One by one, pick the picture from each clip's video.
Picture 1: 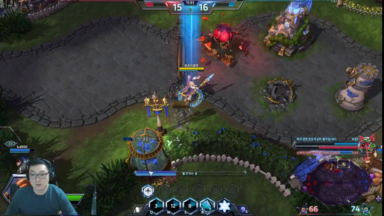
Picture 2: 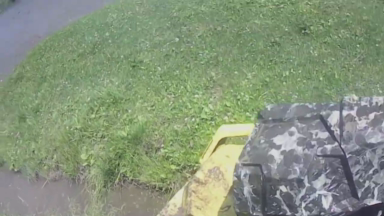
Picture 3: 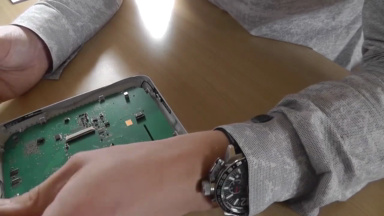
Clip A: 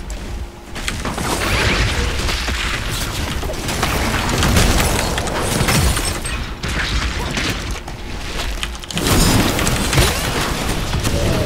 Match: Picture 1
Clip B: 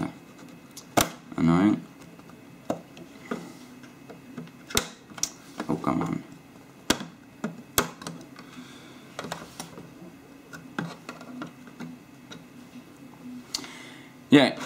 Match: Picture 3